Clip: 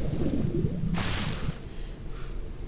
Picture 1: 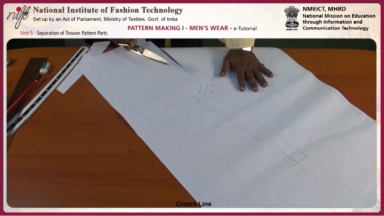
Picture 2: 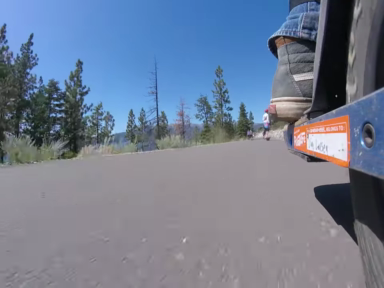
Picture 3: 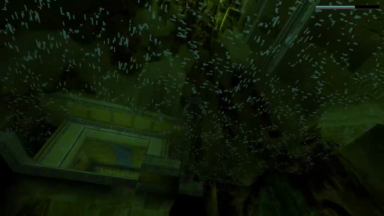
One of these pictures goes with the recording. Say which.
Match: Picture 3